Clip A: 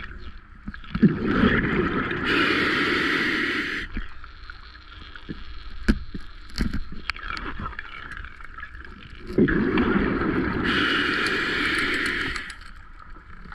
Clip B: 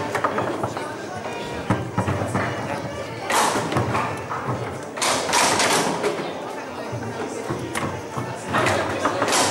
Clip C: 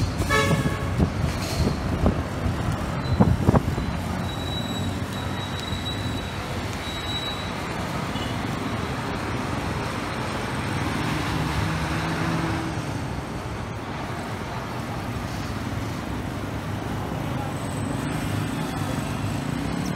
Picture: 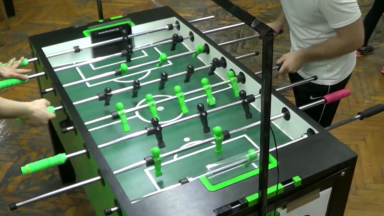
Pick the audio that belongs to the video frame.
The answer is B